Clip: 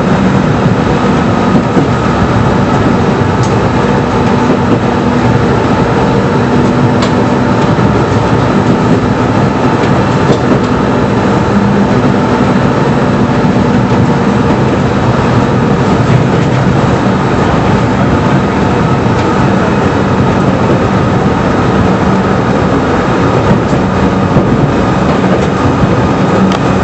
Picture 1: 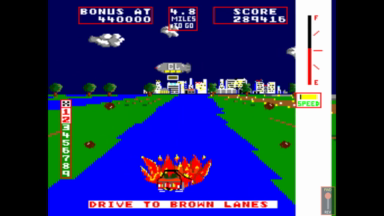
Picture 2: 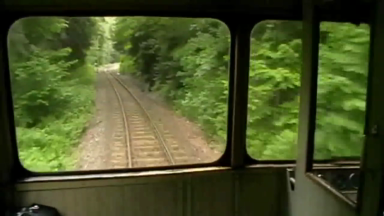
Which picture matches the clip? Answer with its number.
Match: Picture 2